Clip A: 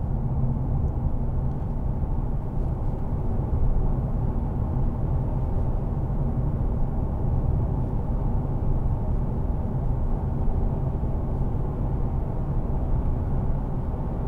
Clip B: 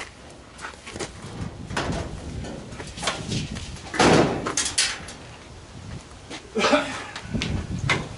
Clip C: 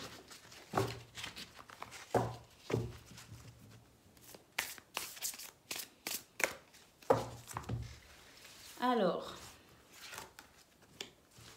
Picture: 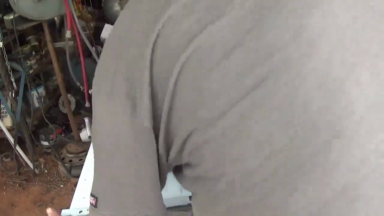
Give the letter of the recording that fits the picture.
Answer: B